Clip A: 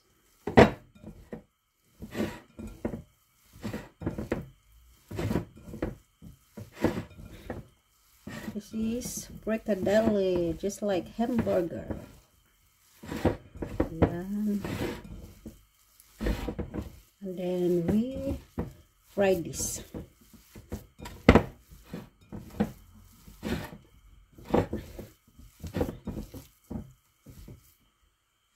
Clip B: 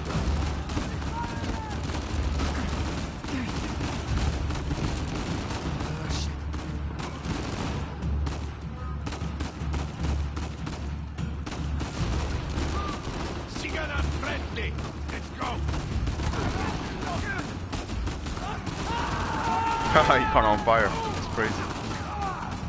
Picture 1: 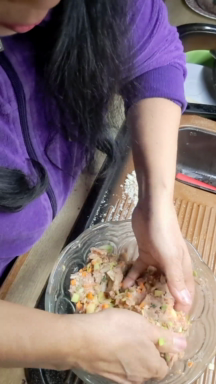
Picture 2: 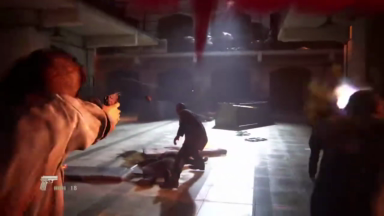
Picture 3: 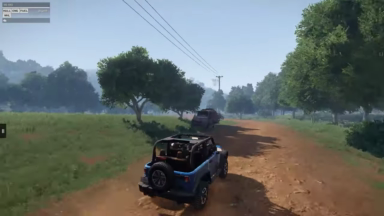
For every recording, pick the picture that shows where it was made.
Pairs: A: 1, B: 2